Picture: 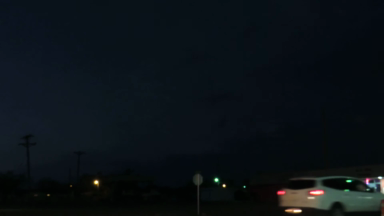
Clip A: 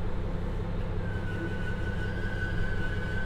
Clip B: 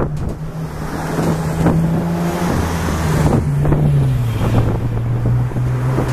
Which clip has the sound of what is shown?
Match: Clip B